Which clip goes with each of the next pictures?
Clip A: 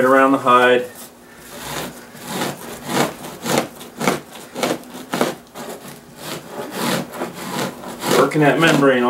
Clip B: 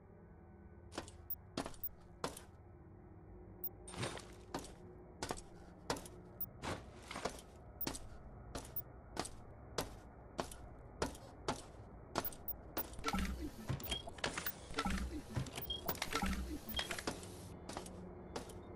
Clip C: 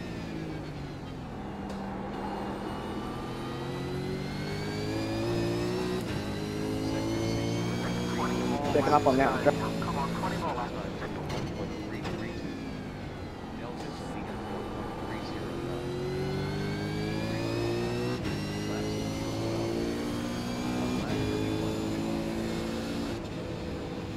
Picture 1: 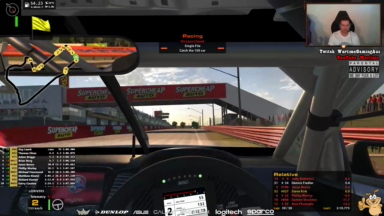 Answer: C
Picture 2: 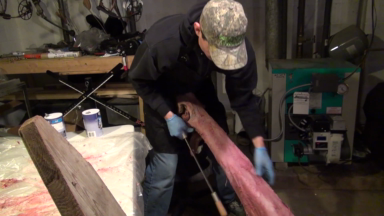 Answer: A